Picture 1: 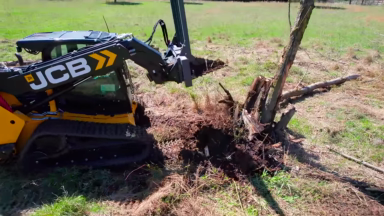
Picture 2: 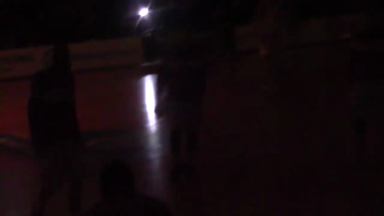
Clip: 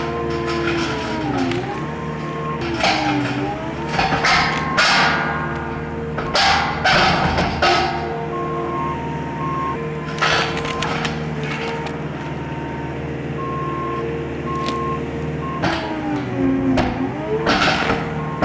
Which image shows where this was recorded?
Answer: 1